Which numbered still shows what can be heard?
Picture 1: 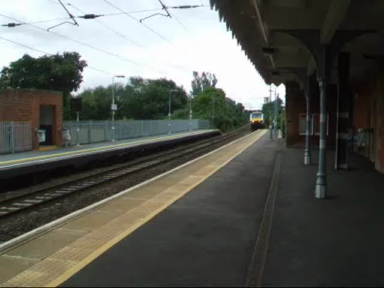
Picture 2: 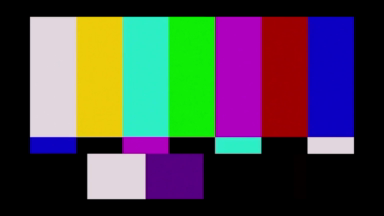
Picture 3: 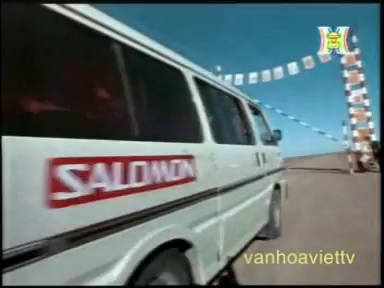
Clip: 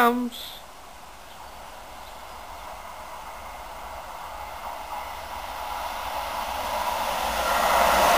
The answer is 1